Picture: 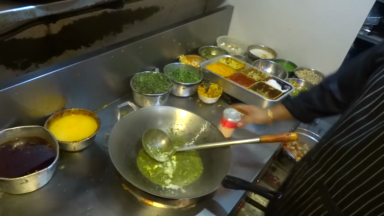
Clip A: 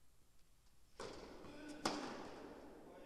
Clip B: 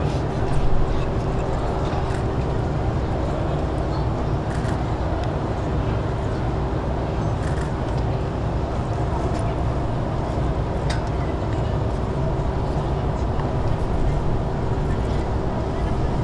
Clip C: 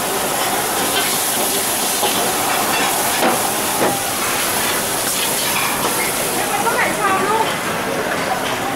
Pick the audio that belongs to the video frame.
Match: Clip C